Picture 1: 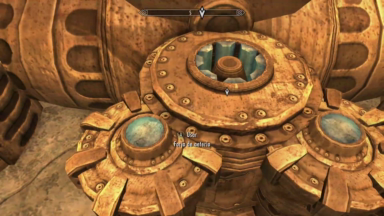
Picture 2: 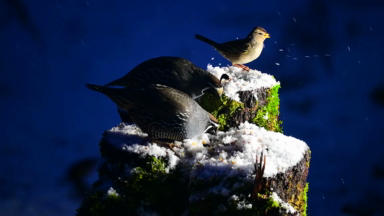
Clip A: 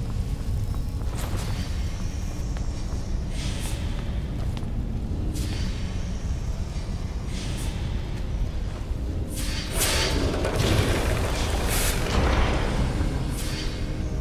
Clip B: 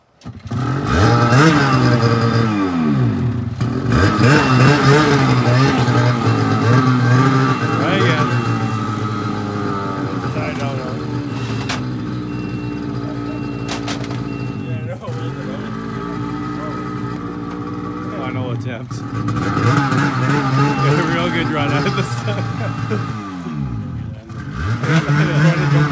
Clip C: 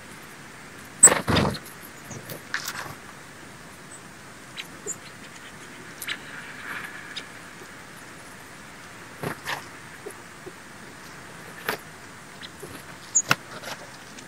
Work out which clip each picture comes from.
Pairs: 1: A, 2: C